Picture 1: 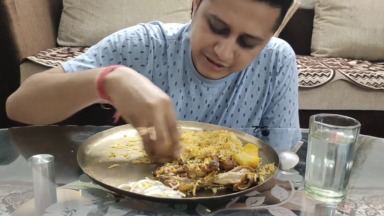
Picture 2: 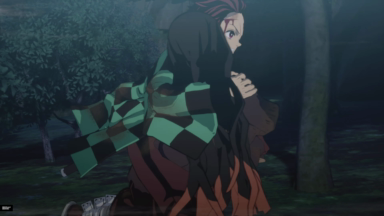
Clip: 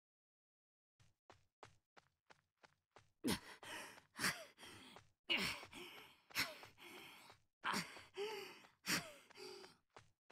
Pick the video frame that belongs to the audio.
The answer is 2